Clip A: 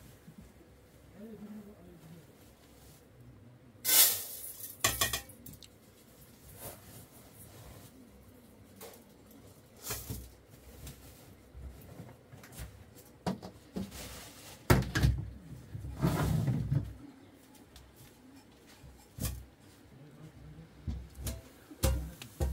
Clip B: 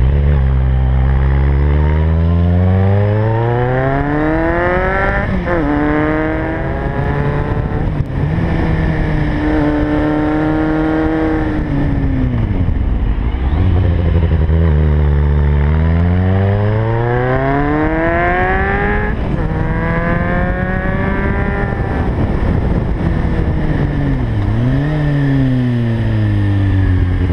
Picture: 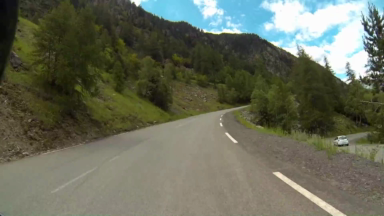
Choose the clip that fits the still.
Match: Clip B